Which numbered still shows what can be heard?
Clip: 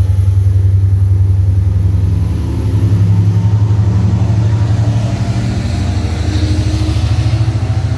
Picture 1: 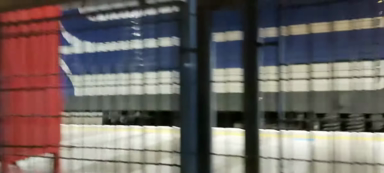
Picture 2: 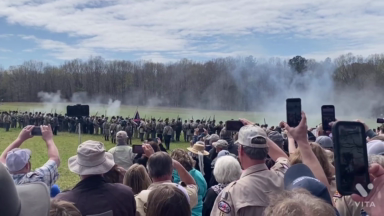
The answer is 1